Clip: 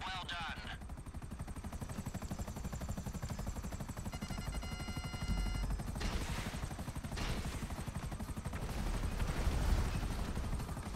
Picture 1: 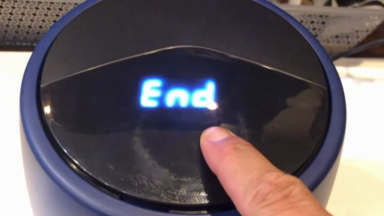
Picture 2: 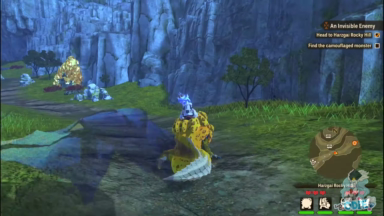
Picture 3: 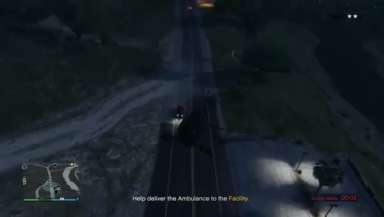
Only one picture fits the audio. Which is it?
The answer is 3